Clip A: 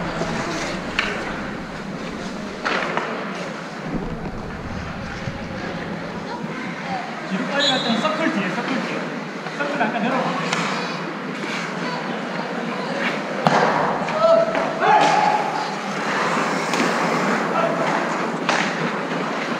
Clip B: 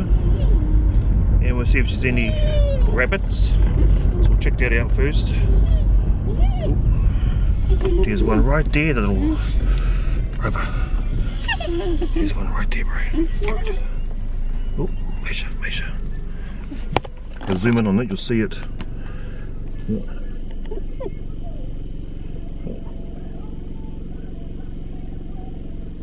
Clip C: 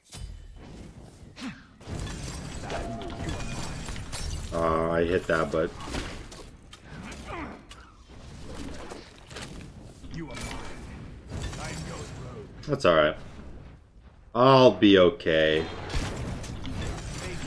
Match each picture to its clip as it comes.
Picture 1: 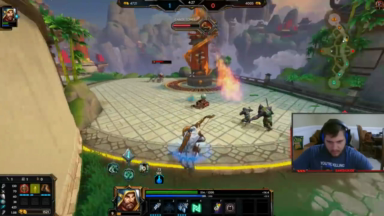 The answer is C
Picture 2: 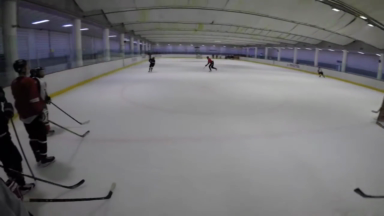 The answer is A